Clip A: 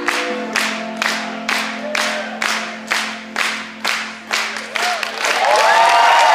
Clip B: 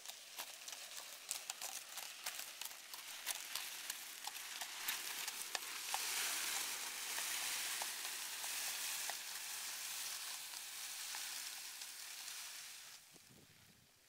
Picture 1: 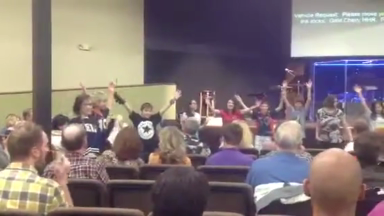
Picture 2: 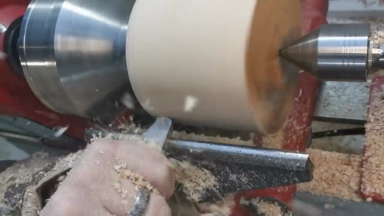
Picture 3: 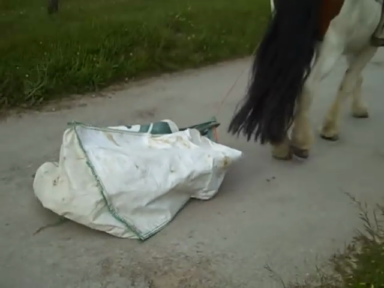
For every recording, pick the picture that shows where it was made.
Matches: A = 1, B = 3